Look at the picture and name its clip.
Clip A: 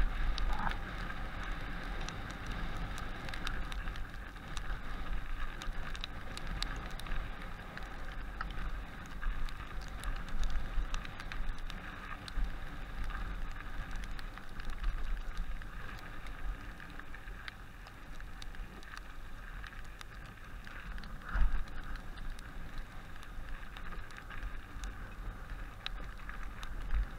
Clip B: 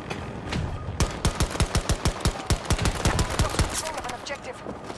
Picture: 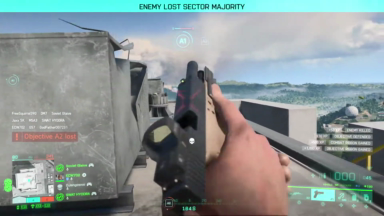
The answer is B